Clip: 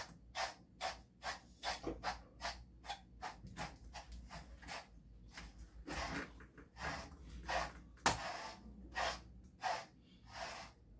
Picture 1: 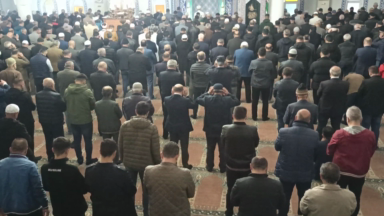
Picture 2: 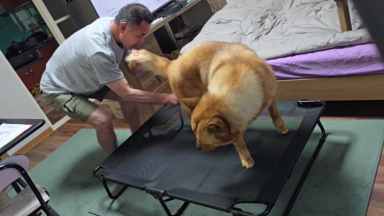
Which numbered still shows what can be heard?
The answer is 2